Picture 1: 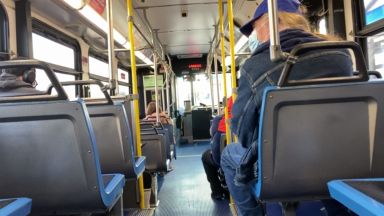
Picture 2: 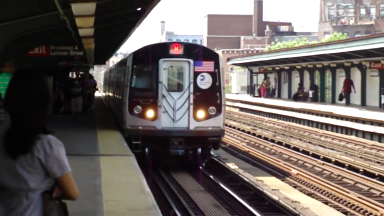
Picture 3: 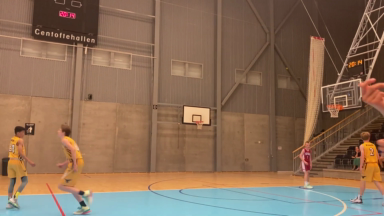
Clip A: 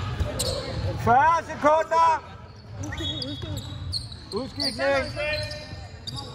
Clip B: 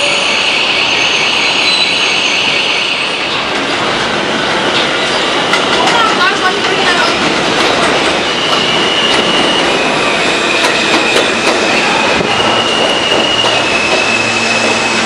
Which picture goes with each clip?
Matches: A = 3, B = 2